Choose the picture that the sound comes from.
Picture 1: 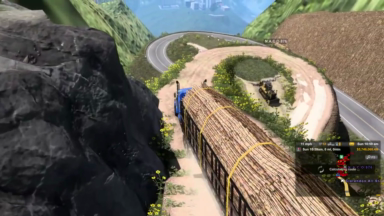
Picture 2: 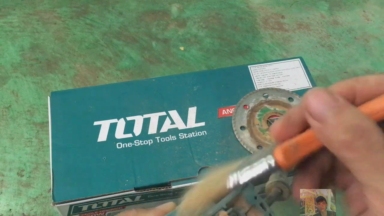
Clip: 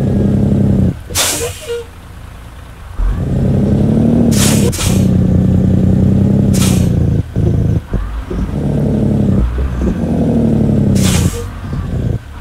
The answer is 1